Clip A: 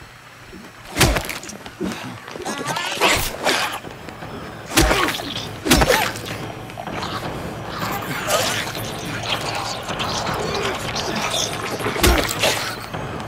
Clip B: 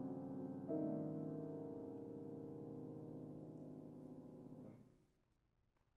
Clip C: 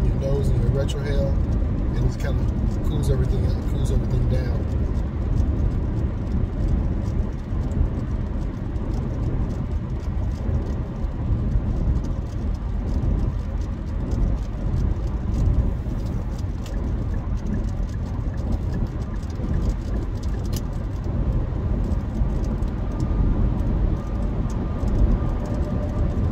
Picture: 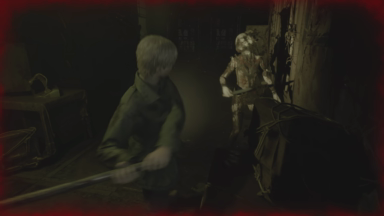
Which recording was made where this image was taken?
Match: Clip A